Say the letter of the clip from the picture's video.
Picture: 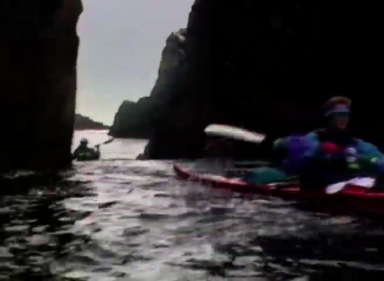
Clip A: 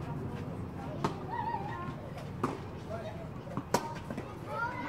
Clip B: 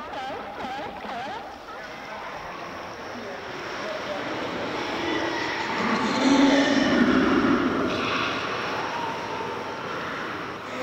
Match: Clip B